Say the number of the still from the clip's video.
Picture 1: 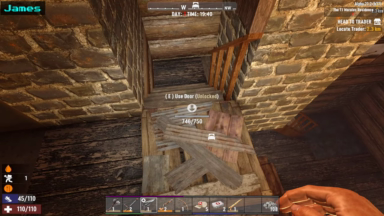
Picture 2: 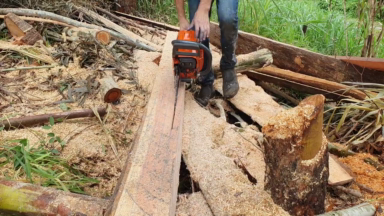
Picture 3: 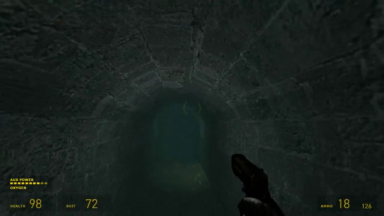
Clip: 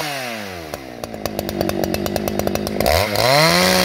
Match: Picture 2